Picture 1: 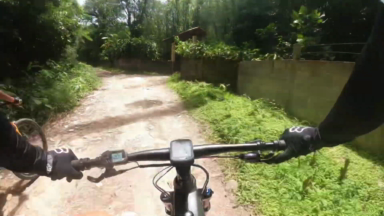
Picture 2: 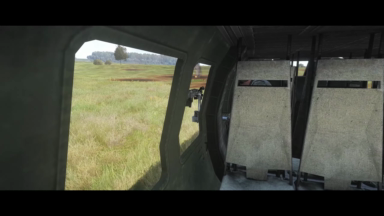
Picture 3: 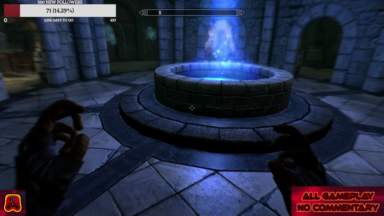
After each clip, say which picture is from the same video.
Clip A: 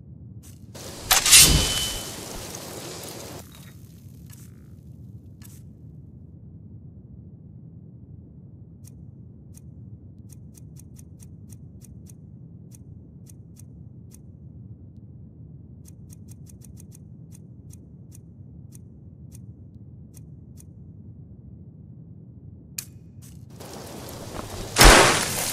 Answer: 3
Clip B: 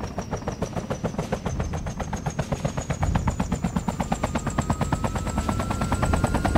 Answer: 2